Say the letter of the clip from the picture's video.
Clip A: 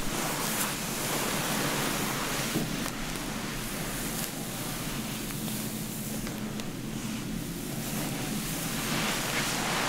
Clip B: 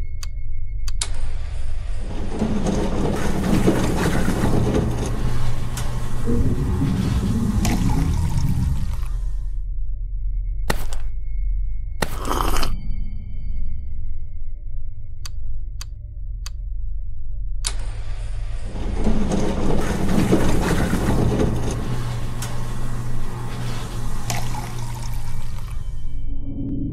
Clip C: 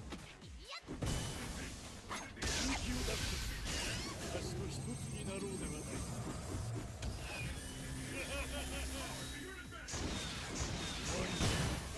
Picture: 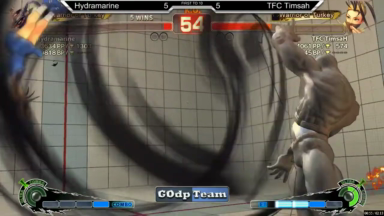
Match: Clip C